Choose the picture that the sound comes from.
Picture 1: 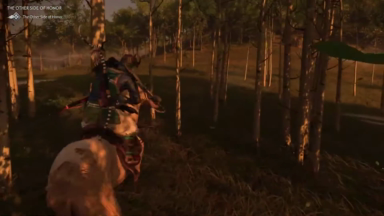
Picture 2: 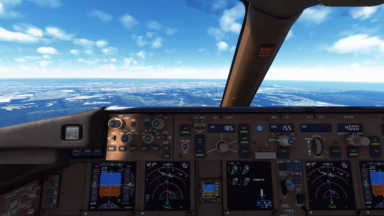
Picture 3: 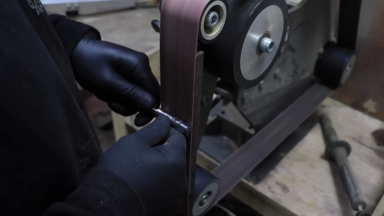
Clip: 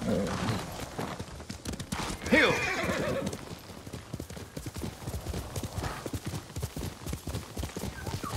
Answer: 1